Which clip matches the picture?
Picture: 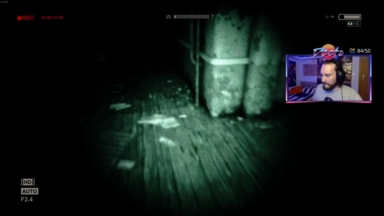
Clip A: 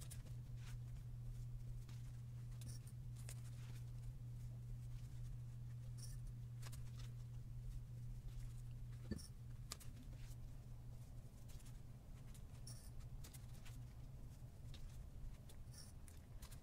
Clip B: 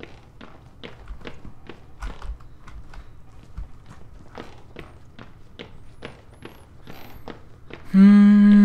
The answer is B